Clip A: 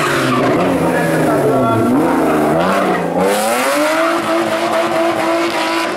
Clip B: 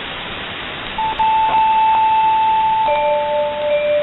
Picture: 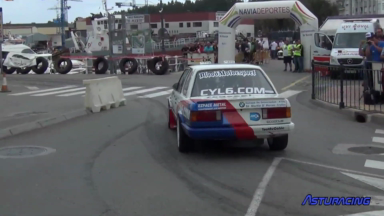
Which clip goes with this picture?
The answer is A